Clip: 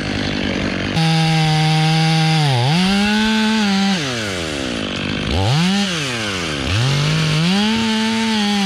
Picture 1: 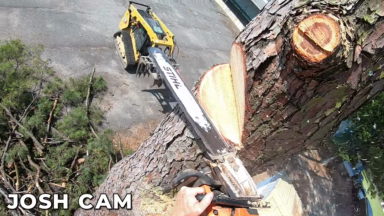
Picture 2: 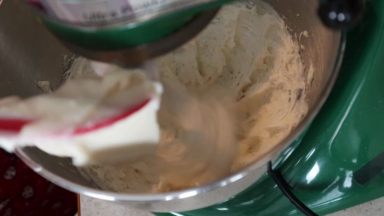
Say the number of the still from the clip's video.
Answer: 1